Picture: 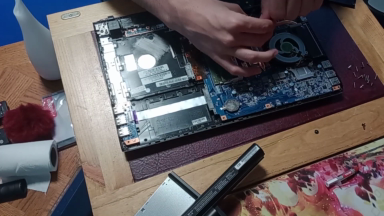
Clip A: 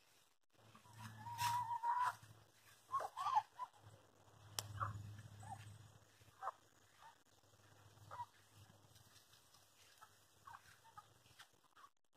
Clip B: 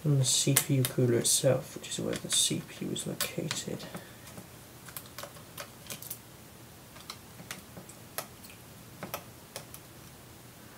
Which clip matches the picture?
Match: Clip B